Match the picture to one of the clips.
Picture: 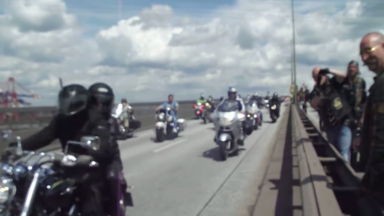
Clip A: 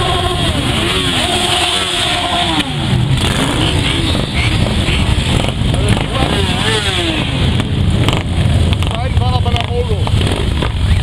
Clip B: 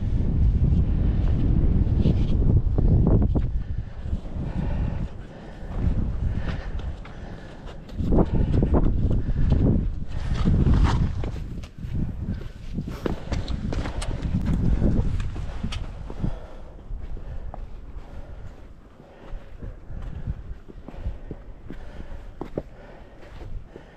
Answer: A